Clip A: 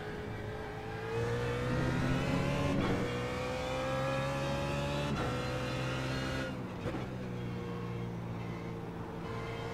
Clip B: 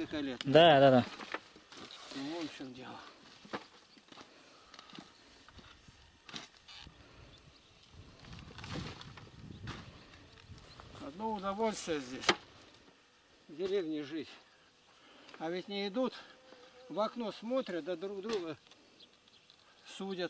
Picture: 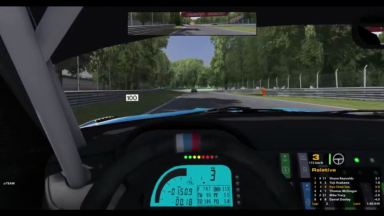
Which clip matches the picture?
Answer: A